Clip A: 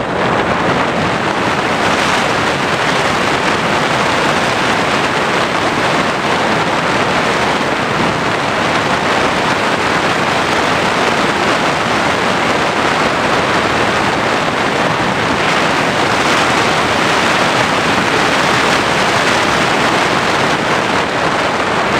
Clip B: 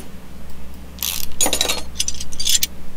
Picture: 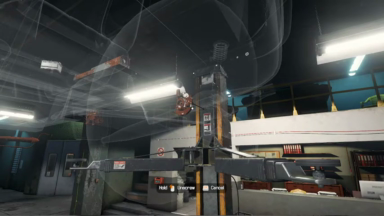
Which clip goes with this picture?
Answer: B